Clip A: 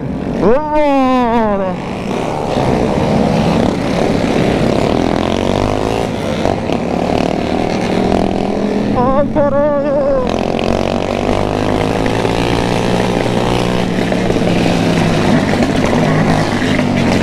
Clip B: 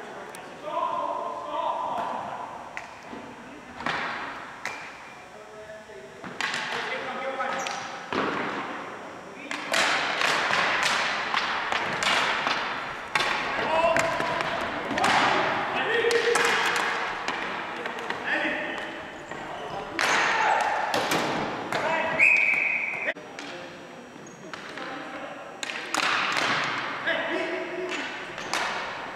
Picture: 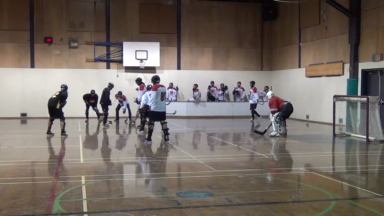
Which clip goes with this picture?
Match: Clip B